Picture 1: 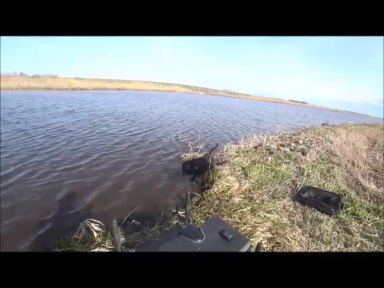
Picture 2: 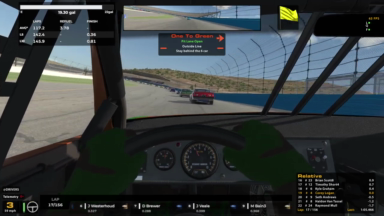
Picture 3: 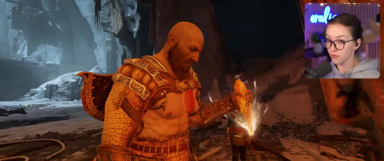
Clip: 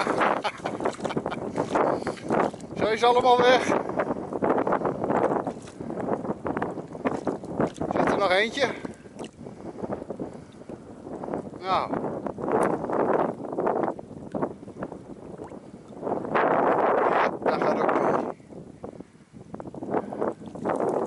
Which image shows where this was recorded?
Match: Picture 1